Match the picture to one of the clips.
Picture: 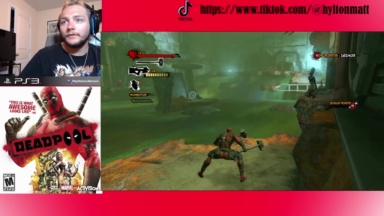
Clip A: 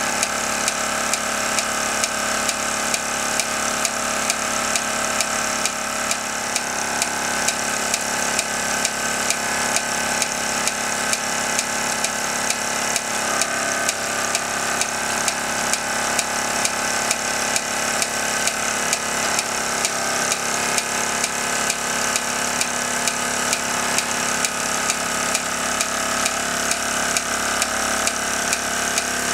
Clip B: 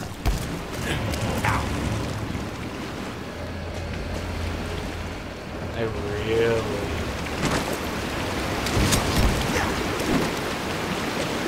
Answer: B